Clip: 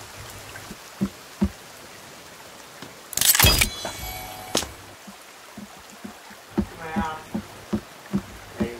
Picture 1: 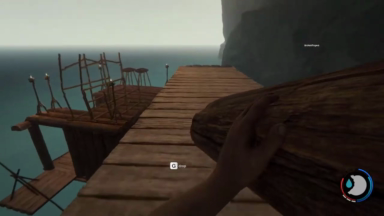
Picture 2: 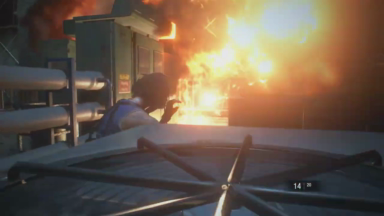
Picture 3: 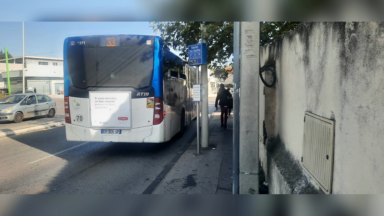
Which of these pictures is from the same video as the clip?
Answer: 1